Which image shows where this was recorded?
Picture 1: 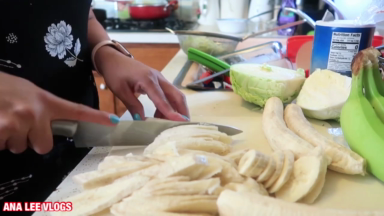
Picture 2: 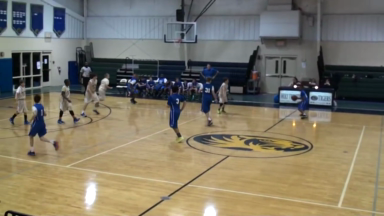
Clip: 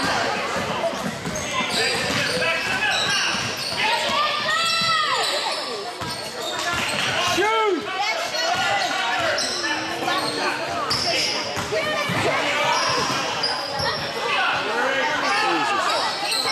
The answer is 2